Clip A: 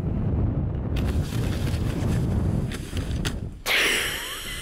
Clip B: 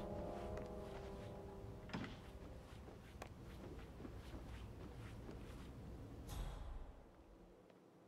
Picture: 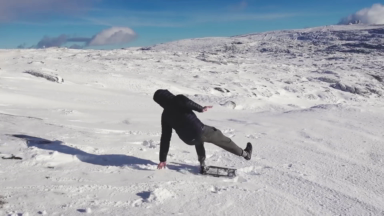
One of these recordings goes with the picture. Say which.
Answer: A